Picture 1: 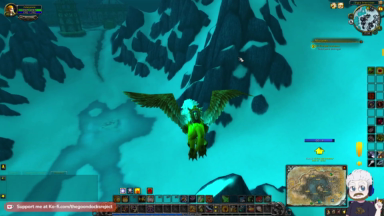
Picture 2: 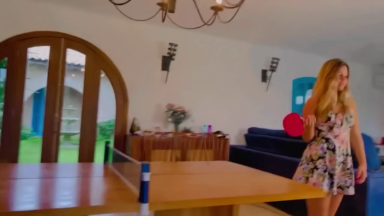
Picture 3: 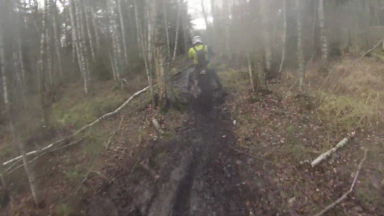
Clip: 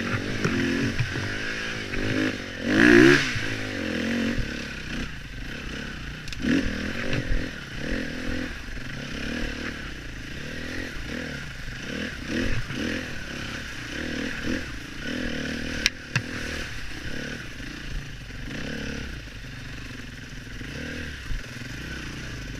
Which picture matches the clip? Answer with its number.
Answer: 3